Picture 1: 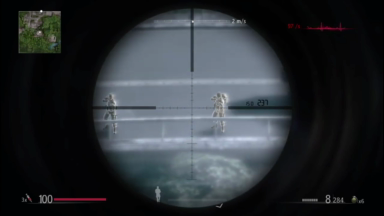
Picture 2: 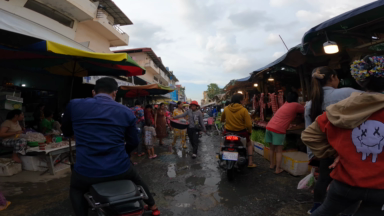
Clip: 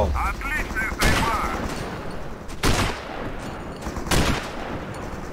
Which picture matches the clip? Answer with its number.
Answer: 1